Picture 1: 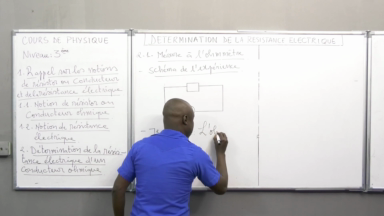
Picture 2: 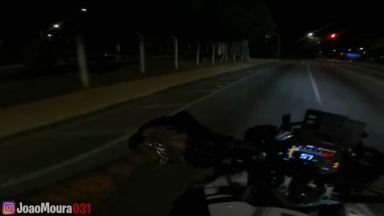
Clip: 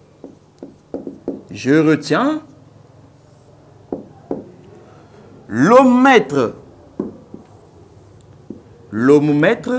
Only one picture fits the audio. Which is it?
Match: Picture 1